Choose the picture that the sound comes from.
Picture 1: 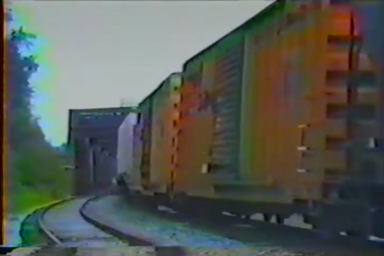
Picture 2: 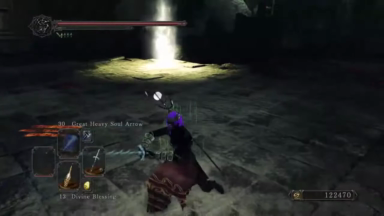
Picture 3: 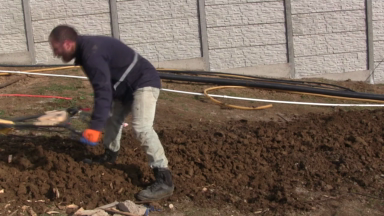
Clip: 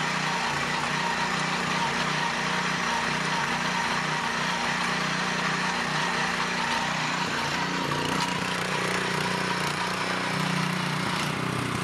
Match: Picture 3